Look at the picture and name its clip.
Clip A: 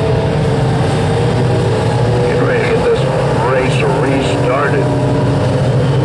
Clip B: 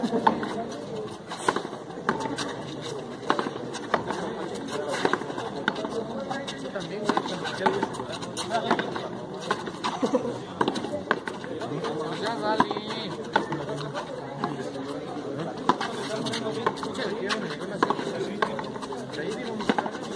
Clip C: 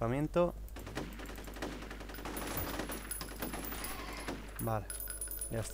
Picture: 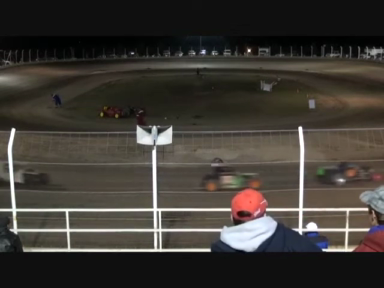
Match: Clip A